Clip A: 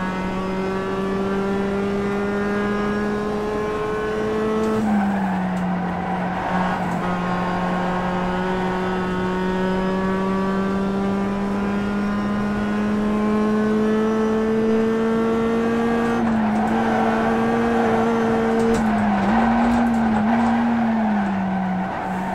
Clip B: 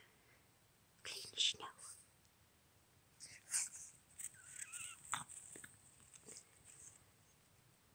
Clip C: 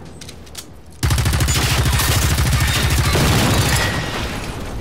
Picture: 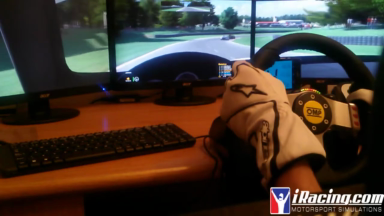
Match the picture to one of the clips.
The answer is A